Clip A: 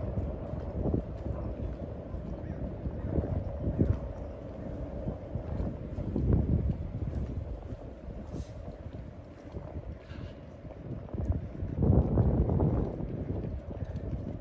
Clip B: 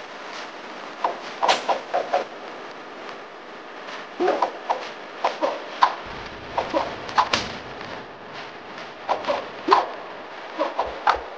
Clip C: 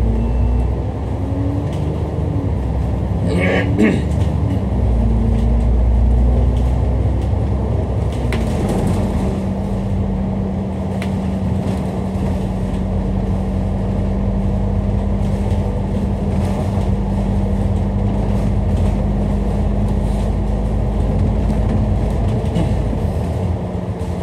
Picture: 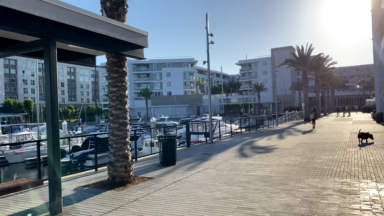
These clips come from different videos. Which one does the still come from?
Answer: A